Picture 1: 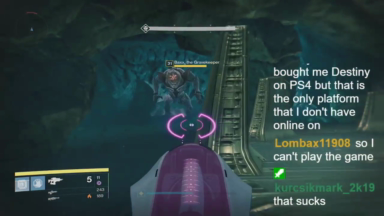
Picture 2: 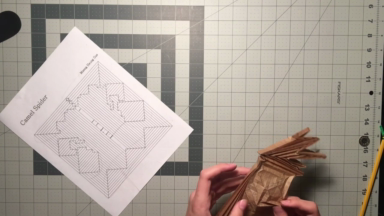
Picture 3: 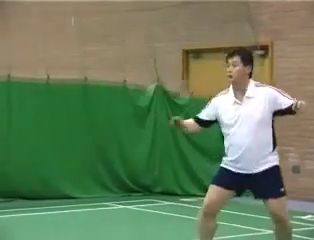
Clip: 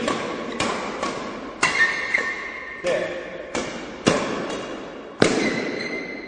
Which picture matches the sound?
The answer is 3